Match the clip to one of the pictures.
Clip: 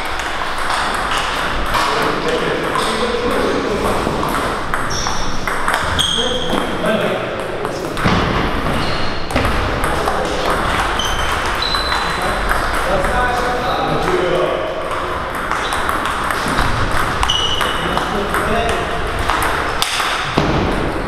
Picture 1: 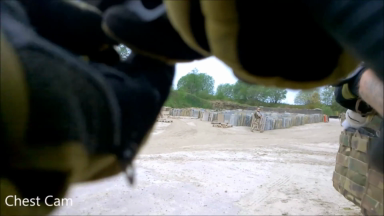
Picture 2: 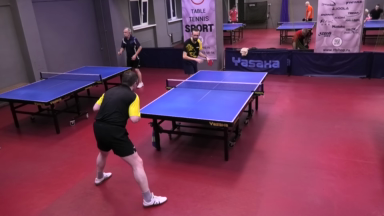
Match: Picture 2